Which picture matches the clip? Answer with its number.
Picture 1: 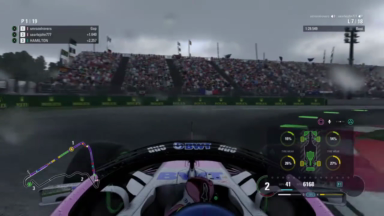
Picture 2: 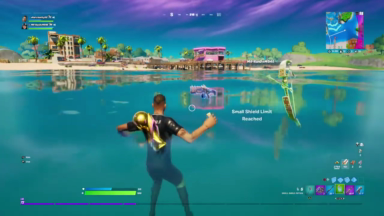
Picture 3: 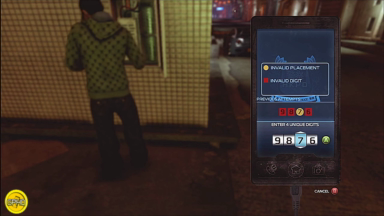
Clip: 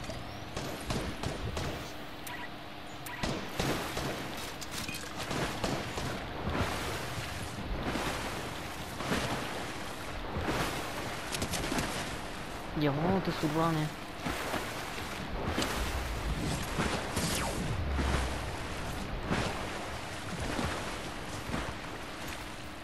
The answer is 2